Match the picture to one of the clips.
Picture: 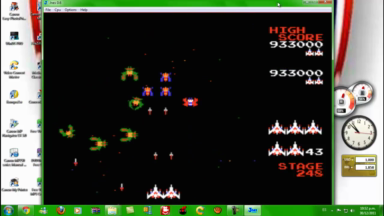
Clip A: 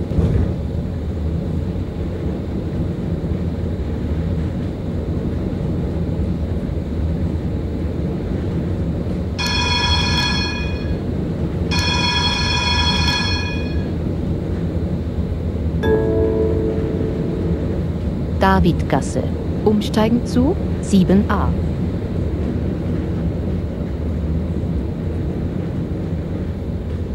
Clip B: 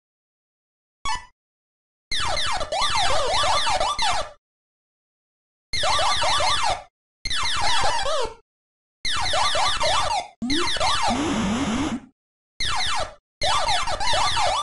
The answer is B